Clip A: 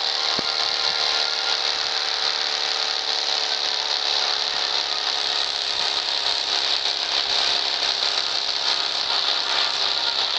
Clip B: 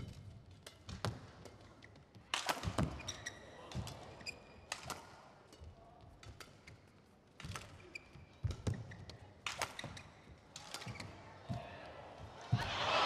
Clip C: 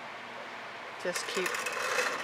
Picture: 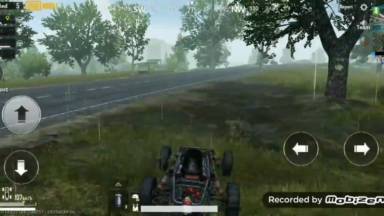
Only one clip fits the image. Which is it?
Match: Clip A